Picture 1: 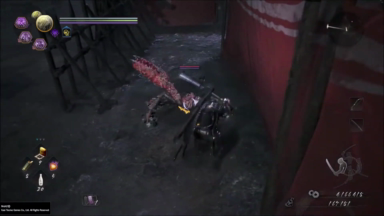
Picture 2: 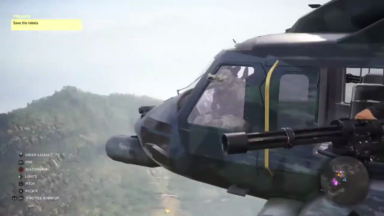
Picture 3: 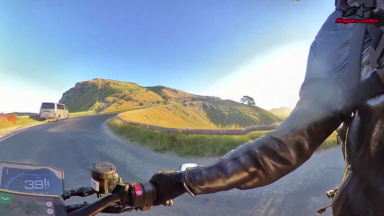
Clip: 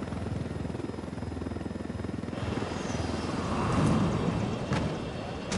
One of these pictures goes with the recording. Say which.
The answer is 2